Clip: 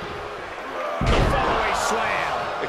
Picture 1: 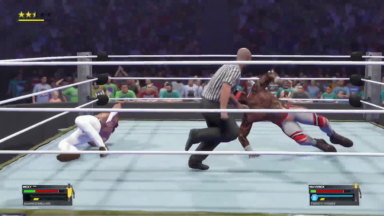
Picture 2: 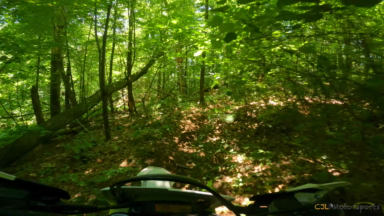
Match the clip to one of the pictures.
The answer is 1